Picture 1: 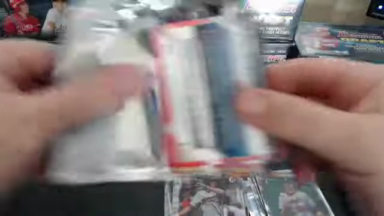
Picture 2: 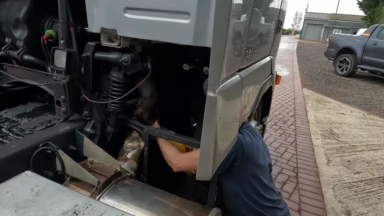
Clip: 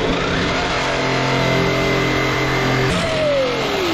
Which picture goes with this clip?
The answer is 2